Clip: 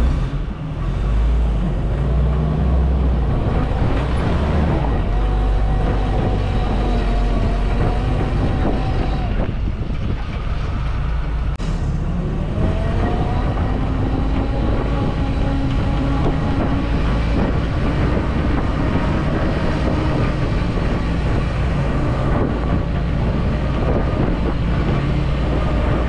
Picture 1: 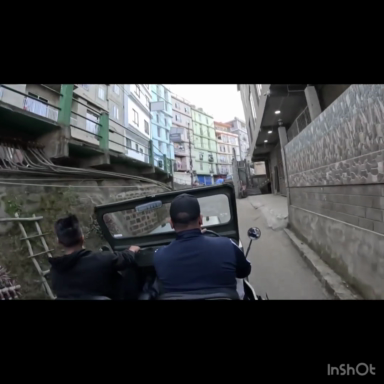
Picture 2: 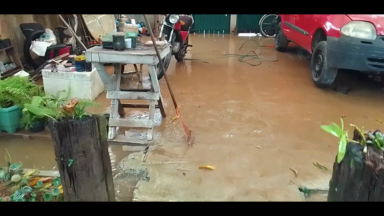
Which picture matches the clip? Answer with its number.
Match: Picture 1